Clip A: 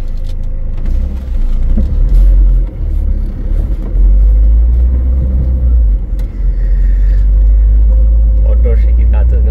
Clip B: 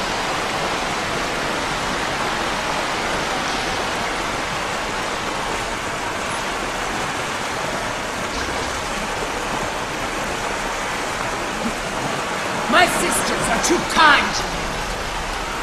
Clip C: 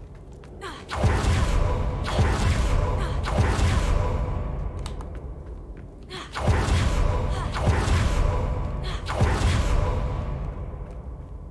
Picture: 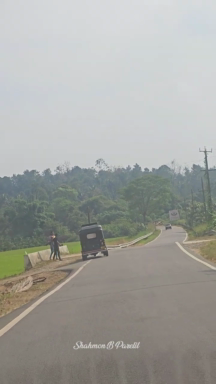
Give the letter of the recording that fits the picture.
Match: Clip A